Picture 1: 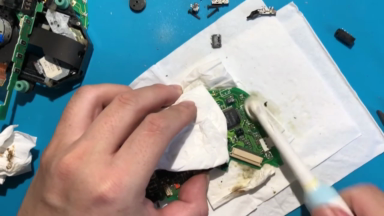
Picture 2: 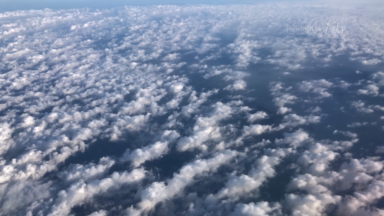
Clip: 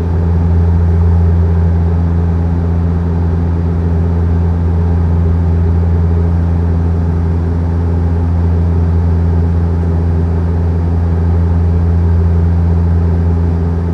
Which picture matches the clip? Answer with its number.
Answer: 2